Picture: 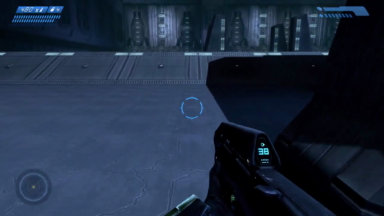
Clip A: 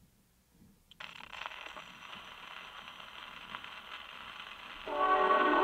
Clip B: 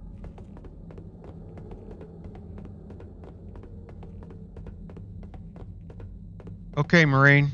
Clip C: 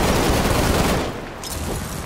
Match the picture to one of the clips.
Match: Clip B